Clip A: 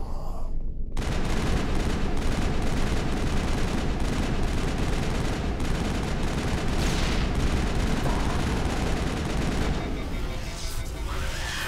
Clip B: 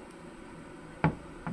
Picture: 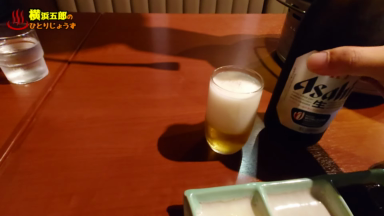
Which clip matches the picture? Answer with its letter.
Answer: B